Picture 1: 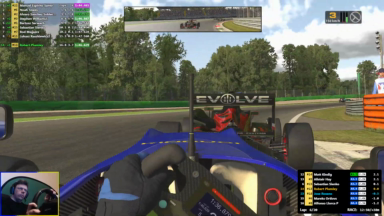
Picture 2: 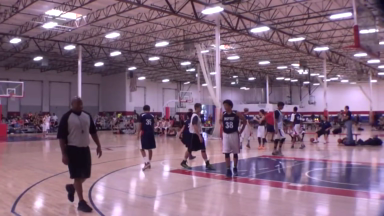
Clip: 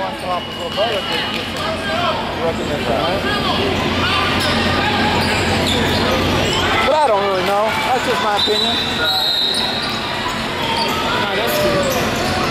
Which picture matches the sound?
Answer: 2